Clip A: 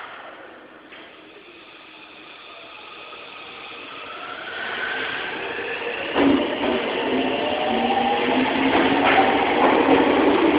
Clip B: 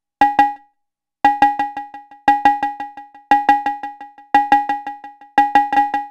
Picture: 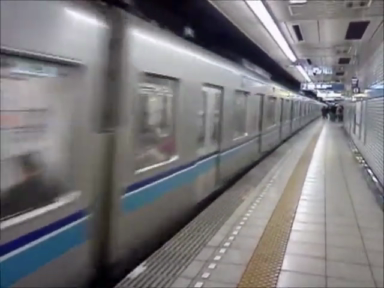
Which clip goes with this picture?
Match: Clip A